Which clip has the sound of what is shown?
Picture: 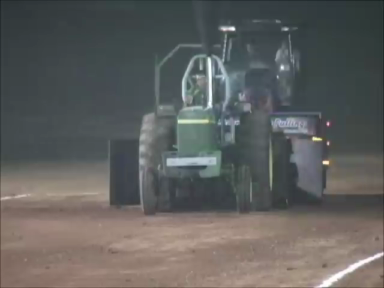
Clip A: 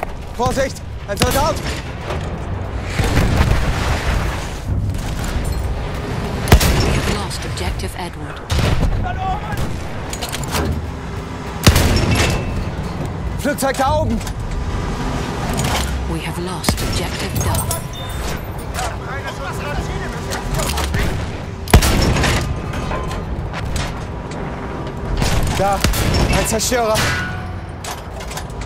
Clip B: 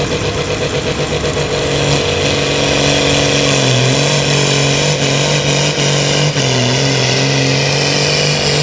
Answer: B